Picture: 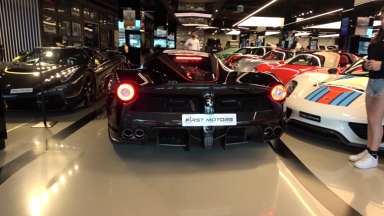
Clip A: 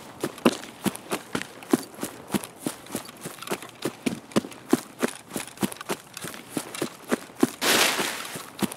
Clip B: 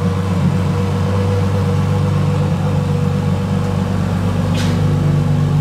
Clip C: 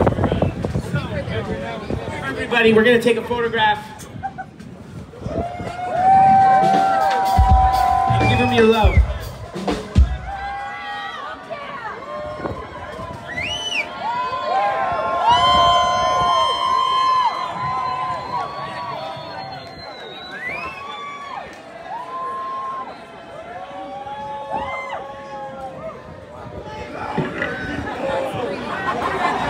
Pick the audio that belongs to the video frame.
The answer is B